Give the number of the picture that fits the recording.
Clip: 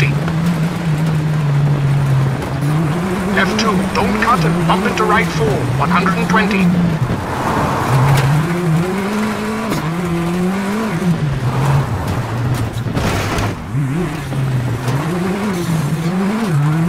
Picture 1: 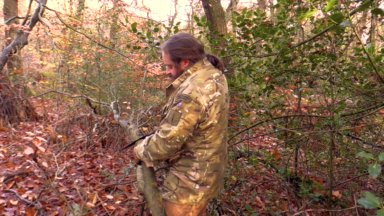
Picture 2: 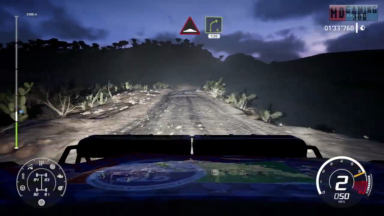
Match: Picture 2